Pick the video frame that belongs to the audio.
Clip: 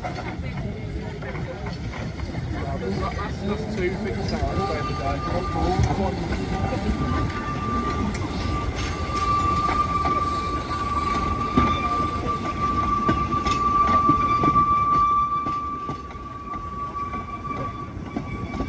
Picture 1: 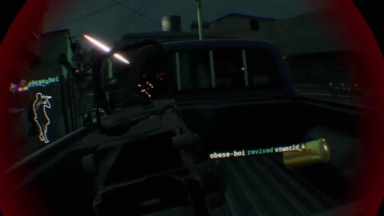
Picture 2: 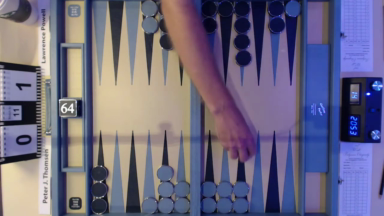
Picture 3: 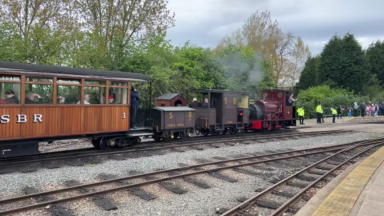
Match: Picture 3